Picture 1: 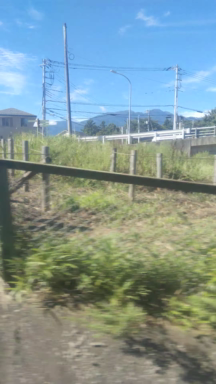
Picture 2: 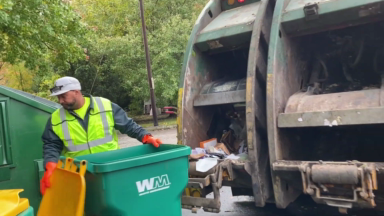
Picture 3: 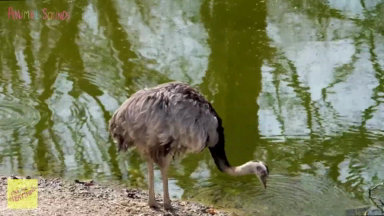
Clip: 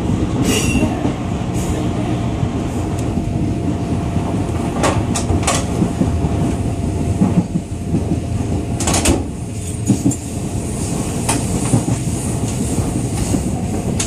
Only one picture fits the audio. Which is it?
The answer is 1